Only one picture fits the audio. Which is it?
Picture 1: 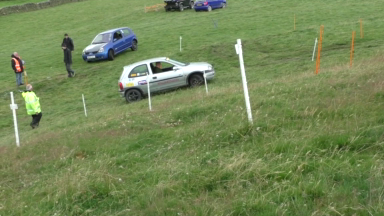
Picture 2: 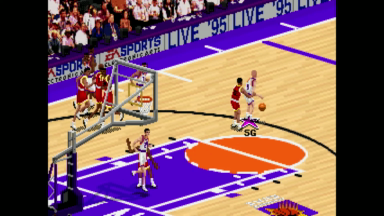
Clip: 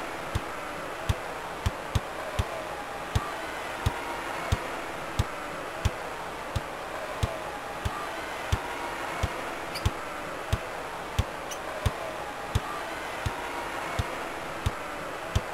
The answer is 2